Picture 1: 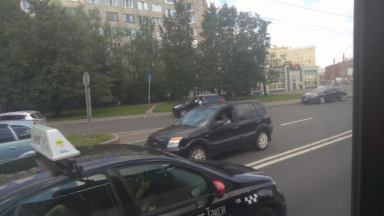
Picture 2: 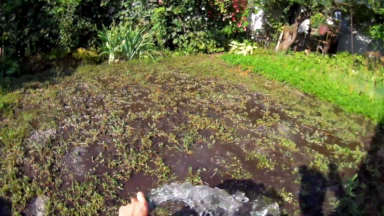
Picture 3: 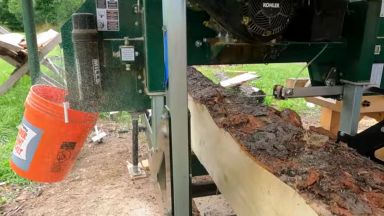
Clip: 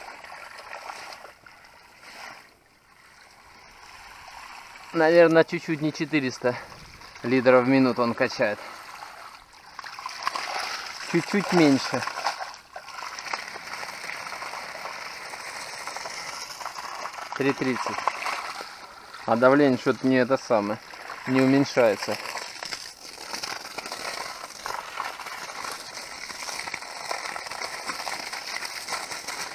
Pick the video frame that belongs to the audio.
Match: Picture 2